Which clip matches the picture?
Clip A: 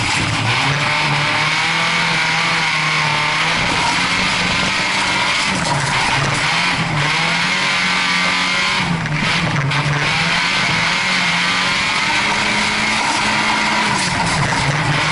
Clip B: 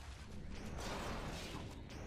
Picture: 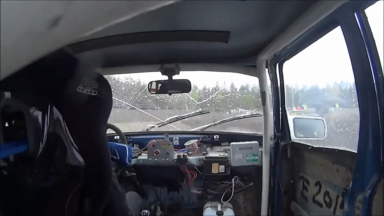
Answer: A